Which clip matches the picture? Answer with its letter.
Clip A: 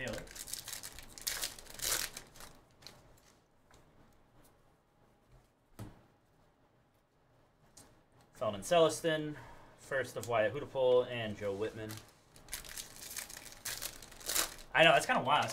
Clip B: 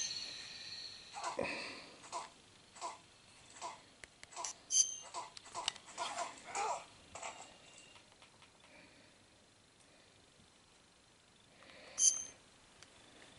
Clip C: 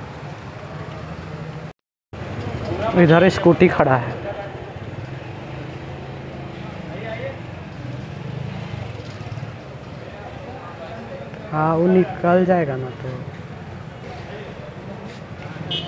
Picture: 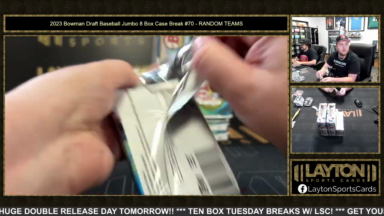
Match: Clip A